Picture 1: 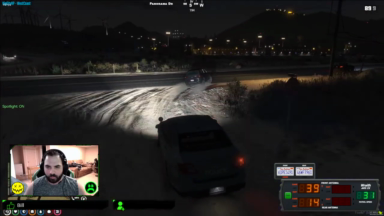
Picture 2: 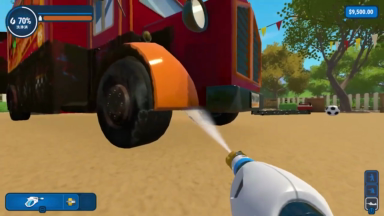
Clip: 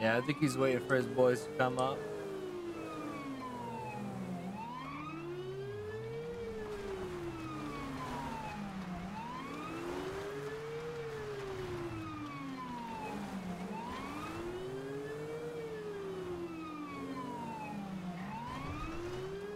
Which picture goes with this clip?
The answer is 1